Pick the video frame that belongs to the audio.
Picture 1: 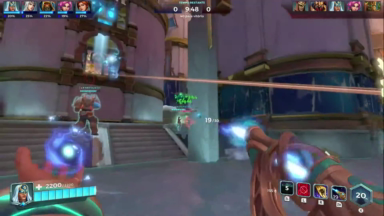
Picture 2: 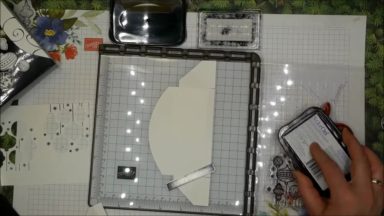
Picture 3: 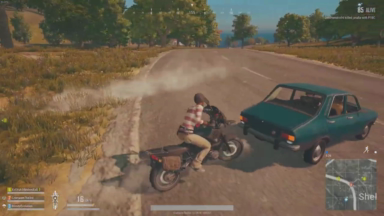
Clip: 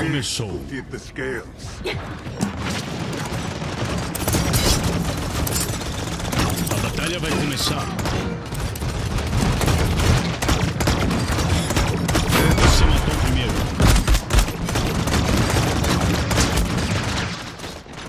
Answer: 1